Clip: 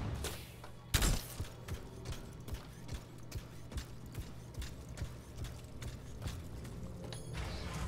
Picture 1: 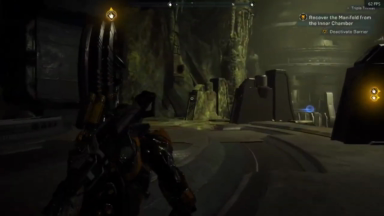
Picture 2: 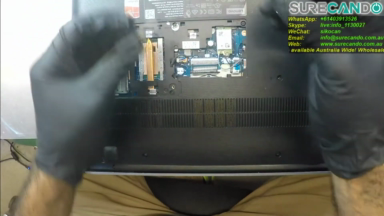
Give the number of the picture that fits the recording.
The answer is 1